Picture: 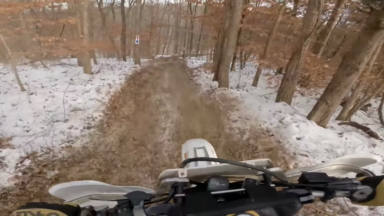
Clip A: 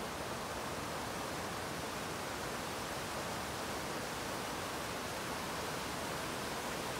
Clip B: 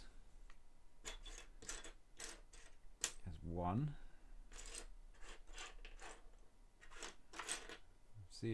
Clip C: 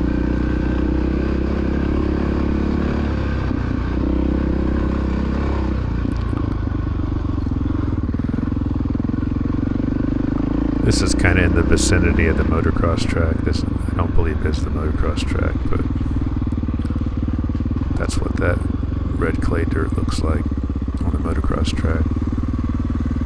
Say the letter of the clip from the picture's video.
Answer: C